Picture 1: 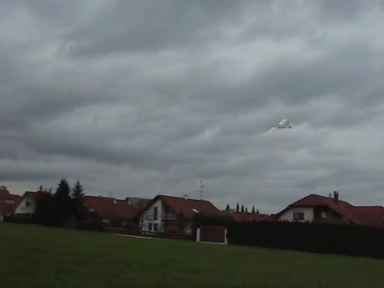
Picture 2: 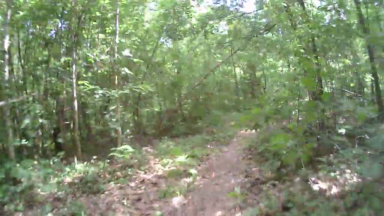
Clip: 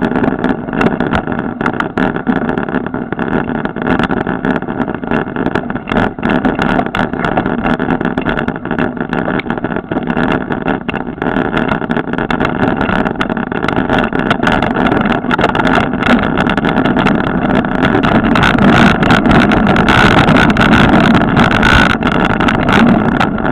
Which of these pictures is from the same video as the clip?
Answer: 2